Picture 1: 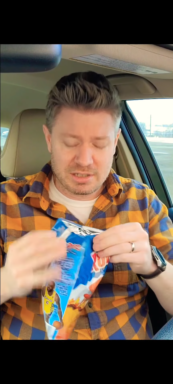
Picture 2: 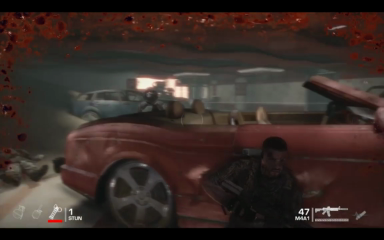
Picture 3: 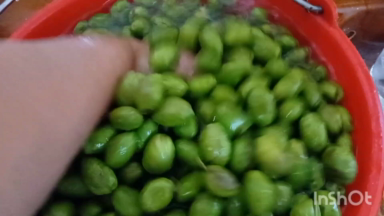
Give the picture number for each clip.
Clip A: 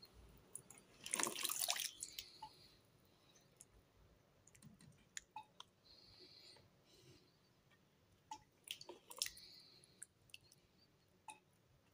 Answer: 3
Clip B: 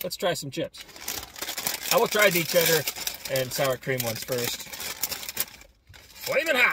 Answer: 1